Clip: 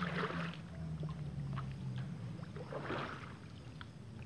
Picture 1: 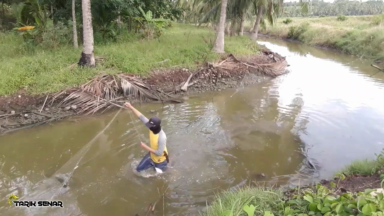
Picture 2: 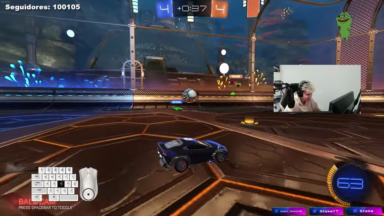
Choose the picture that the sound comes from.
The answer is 1